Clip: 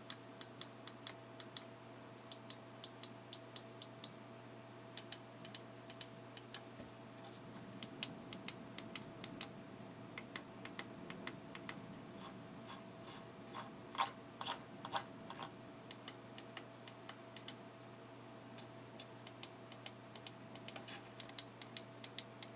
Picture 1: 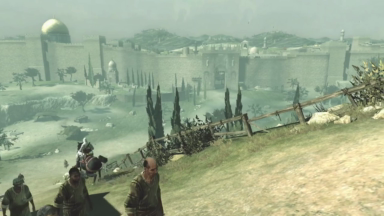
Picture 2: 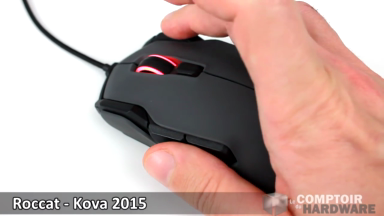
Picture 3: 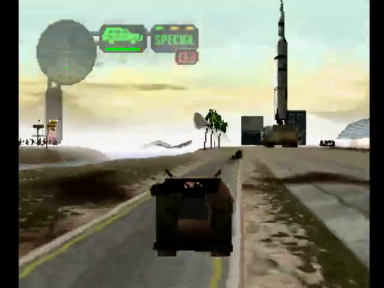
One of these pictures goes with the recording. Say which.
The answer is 2